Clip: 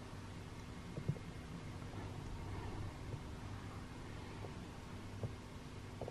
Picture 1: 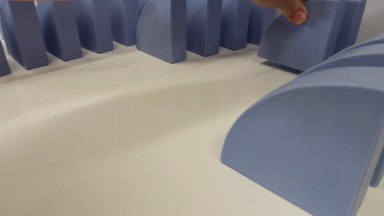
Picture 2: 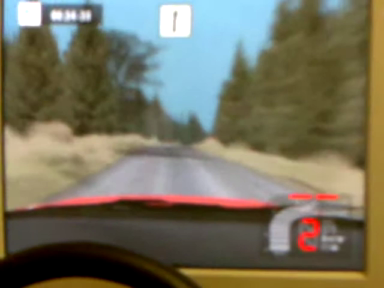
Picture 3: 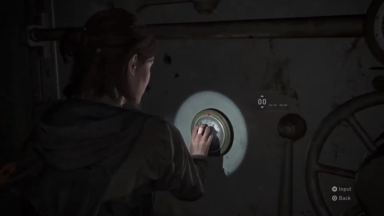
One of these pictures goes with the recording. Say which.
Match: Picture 1